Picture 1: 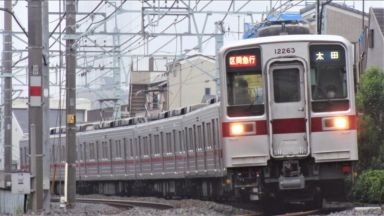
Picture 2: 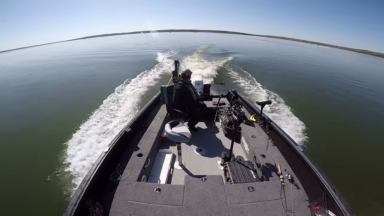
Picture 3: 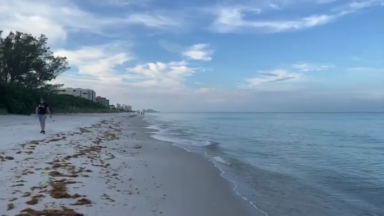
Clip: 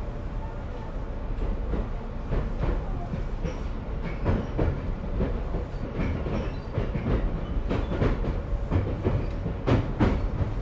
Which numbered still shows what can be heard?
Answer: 1